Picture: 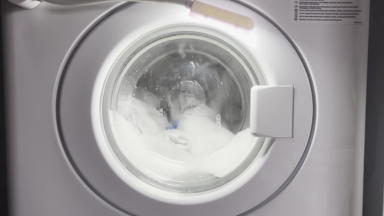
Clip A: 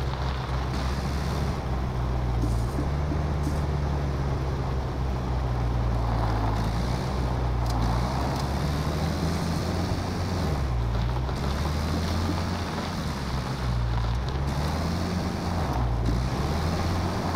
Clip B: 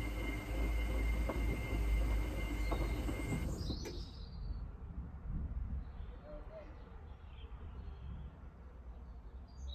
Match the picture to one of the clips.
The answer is B